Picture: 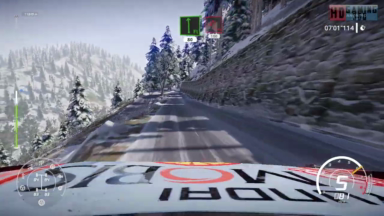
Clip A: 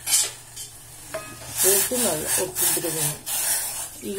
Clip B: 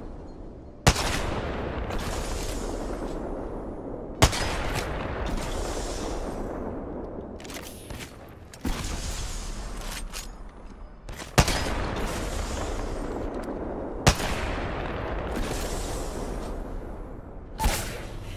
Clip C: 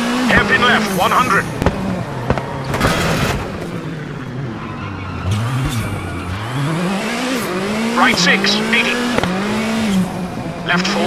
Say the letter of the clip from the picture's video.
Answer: C